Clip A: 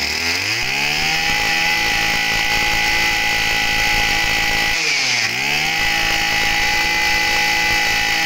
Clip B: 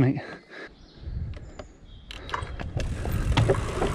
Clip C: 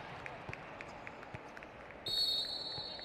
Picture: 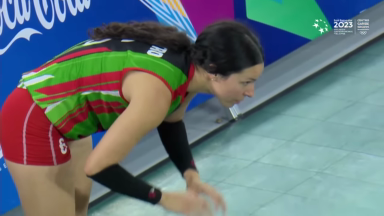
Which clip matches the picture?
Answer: C